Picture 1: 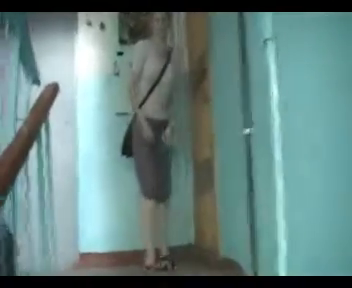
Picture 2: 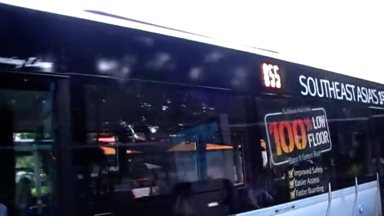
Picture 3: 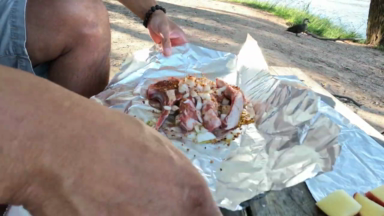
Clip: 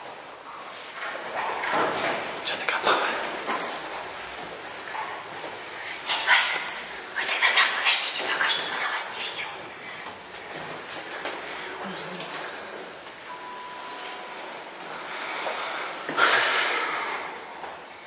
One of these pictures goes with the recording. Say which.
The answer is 1